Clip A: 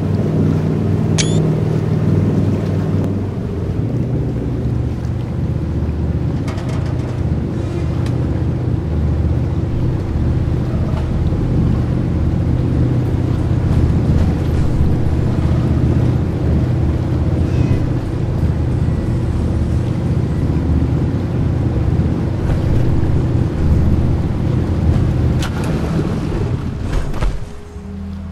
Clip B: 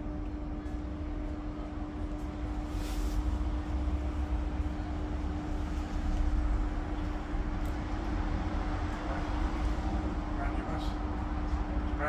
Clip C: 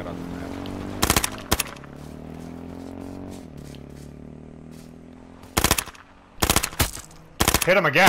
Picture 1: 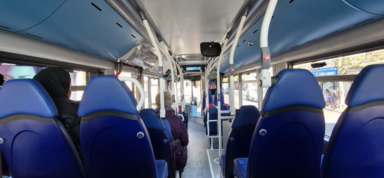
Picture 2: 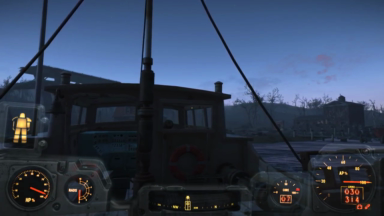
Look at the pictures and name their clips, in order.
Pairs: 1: B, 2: A